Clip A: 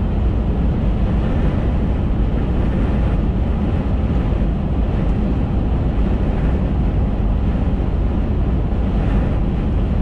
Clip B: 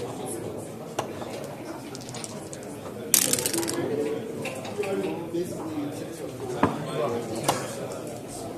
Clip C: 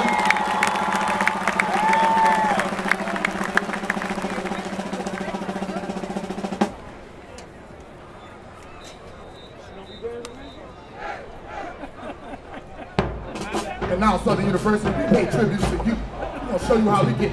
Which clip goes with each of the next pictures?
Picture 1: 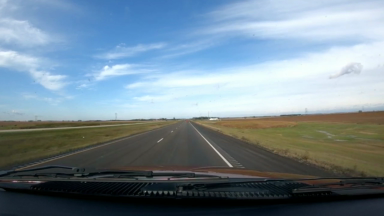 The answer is A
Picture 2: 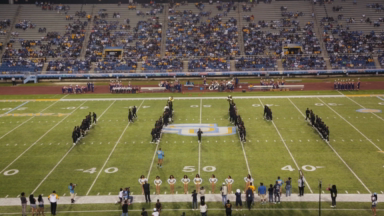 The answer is C